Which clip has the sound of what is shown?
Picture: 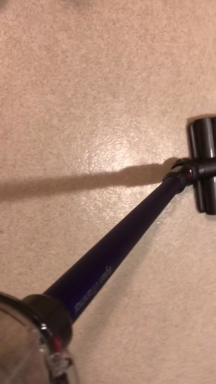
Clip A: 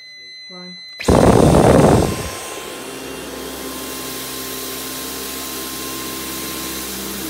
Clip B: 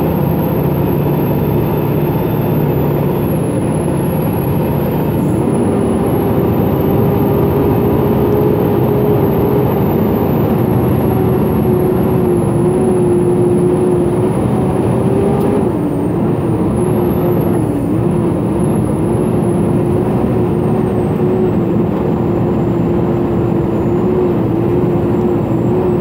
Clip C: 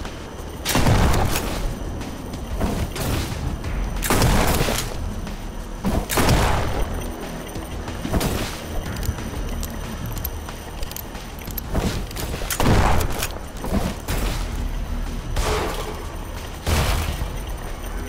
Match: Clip A